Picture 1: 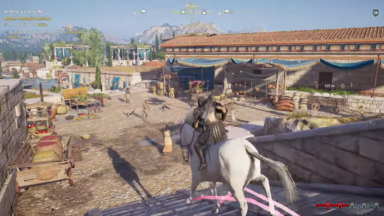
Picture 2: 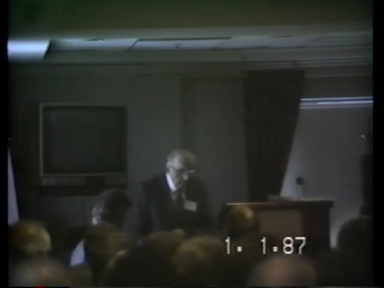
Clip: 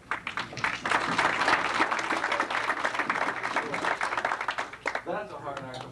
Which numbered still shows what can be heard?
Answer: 2